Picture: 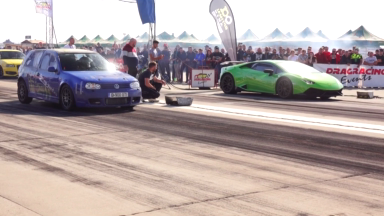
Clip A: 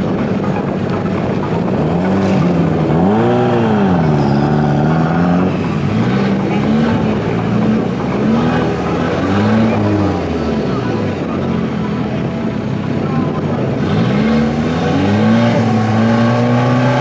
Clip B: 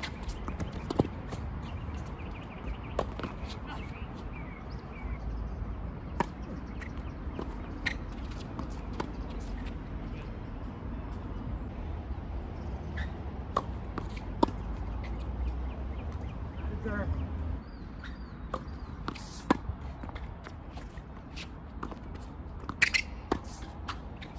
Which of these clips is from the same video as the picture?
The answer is A